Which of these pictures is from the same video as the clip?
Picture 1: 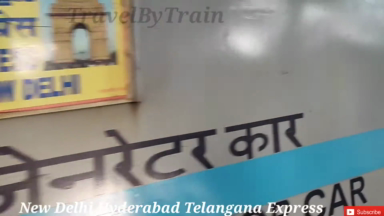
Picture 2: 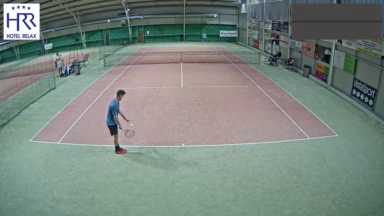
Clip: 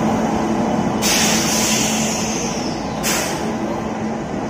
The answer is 1